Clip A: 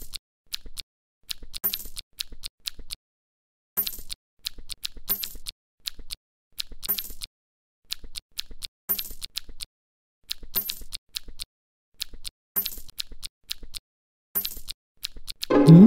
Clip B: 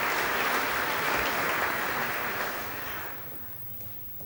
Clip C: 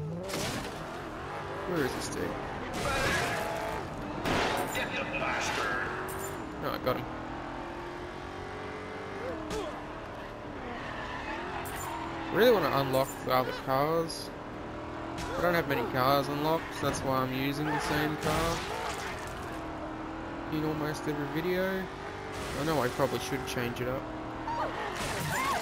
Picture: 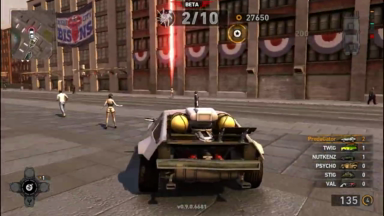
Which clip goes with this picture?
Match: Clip C